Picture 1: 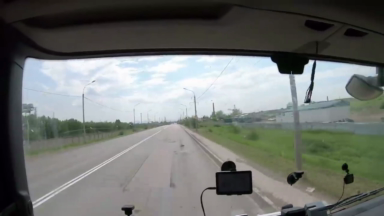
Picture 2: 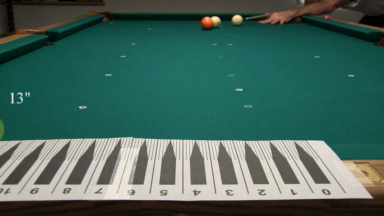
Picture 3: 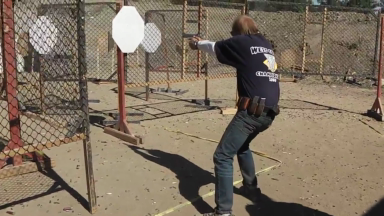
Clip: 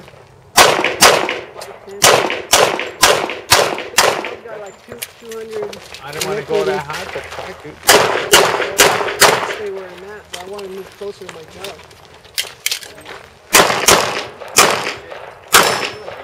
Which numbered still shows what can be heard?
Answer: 3